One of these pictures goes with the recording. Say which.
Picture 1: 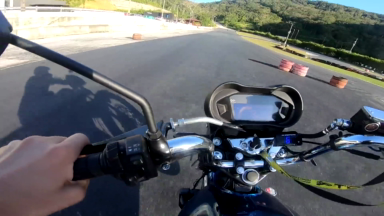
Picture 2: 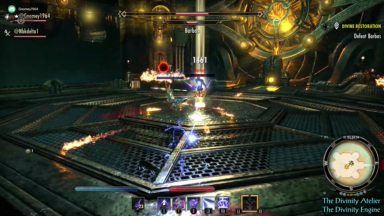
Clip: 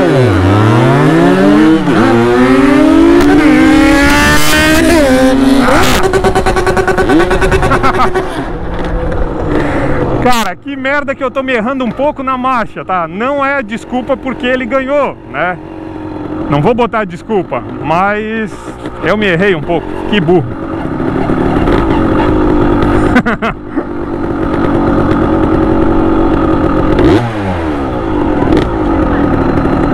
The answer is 1